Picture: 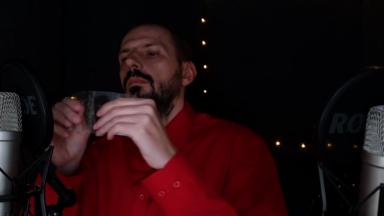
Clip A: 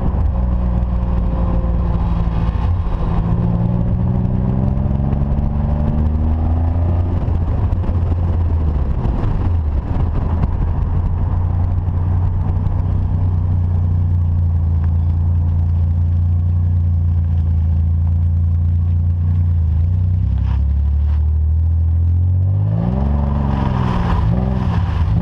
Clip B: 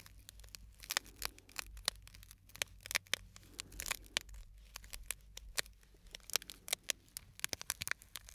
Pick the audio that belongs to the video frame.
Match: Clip B